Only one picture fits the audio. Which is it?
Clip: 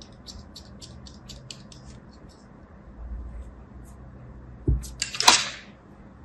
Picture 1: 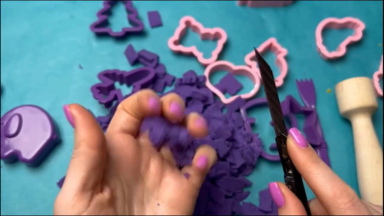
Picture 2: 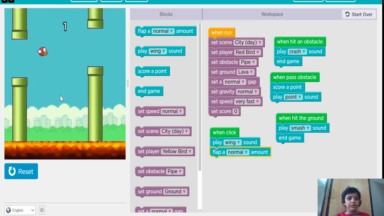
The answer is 1